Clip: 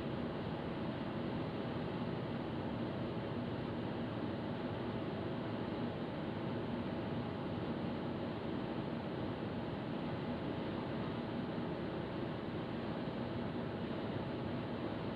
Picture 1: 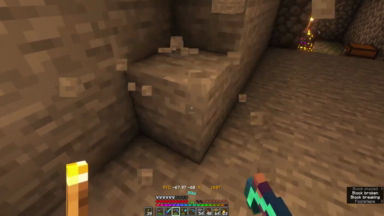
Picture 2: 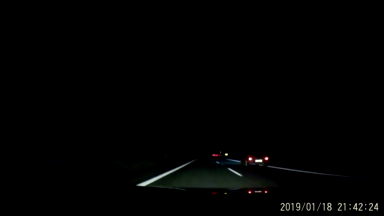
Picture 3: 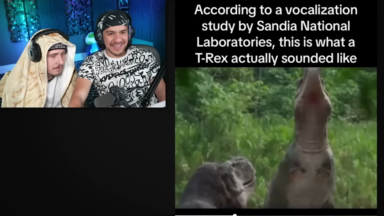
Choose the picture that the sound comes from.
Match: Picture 2